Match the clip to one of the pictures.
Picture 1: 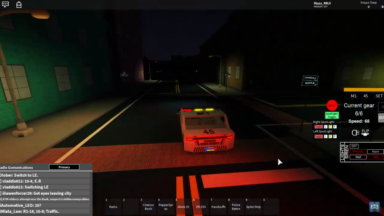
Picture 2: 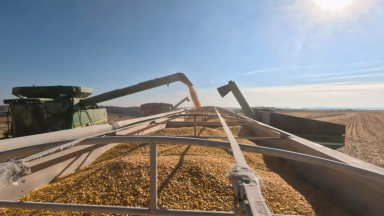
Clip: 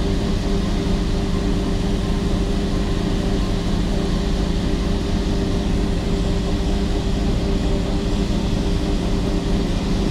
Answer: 2